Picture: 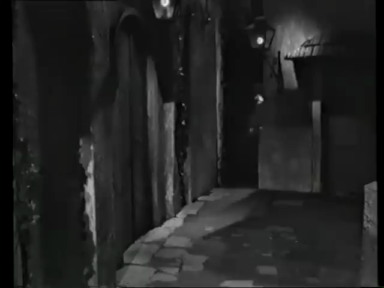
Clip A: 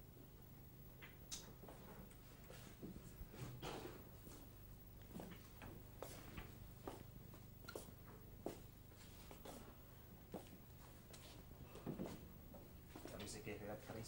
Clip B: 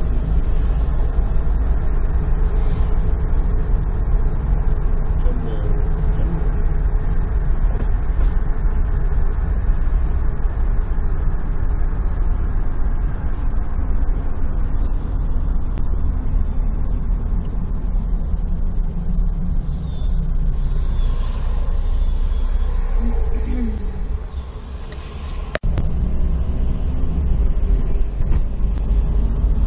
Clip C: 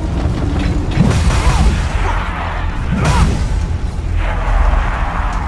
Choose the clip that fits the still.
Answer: A